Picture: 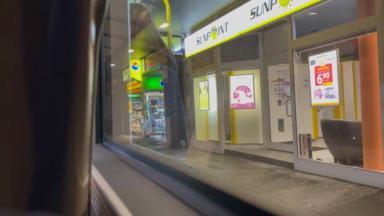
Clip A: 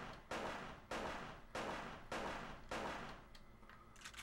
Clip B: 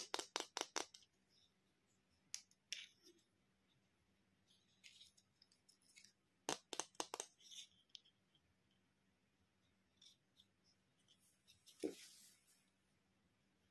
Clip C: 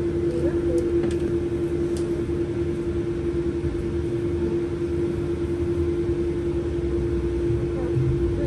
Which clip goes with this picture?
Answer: C